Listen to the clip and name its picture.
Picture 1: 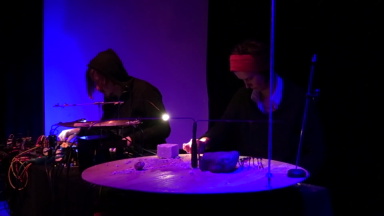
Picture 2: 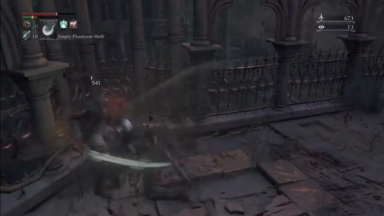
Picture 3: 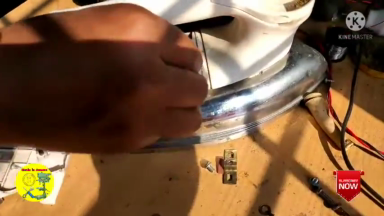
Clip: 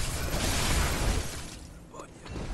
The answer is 2